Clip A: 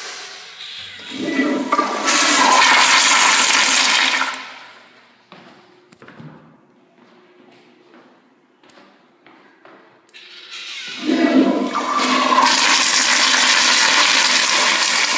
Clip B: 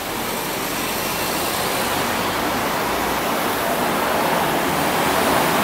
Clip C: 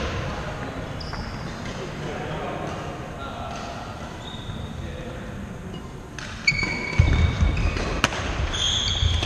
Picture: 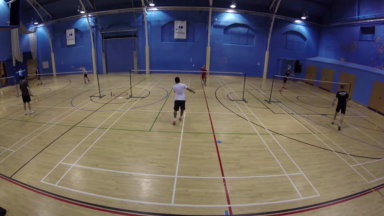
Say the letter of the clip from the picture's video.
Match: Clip C